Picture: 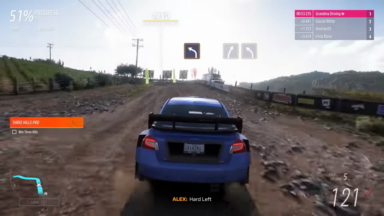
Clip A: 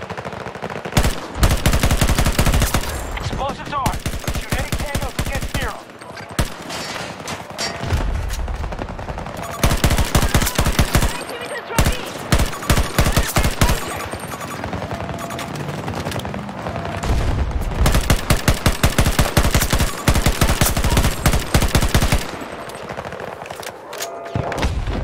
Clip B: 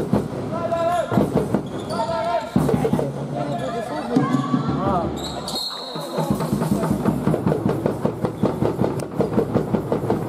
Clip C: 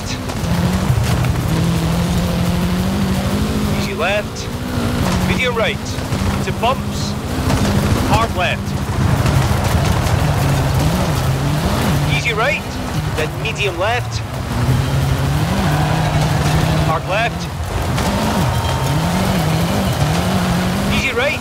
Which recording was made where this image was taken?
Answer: C